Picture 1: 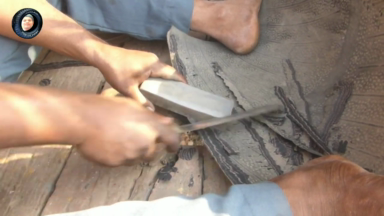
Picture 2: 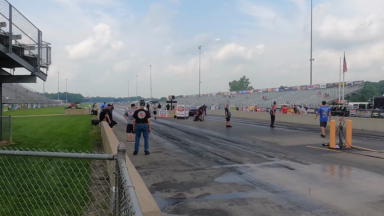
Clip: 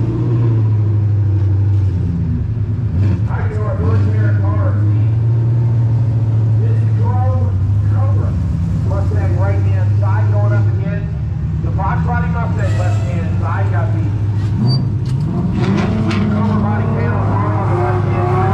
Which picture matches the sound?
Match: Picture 2